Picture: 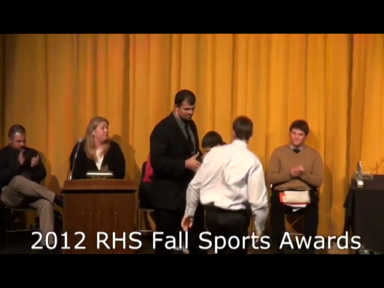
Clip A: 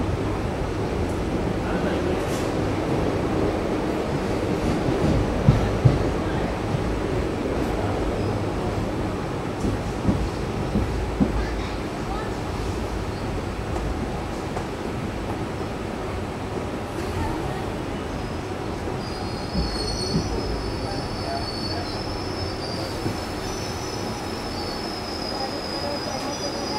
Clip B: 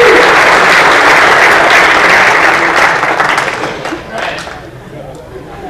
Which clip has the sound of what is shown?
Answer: B